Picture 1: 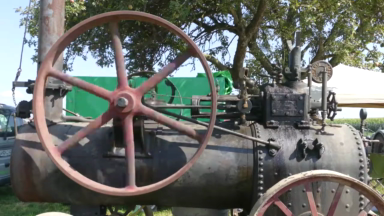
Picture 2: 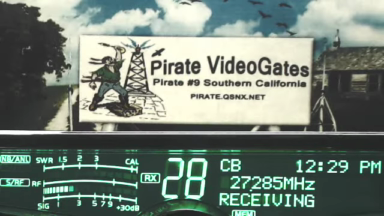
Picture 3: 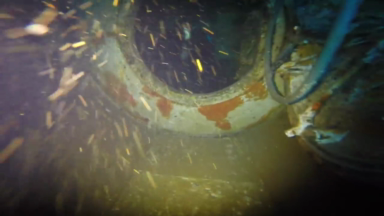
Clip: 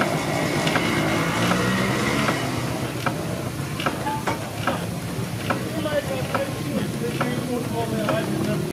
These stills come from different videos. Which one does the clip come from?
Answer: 1